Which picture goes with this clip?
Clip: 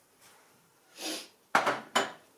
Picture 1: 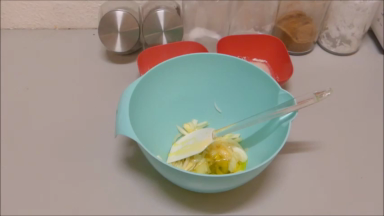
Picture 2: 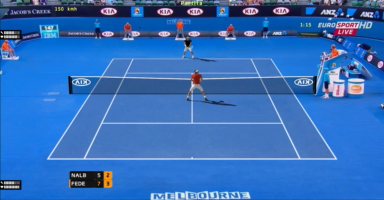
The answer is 1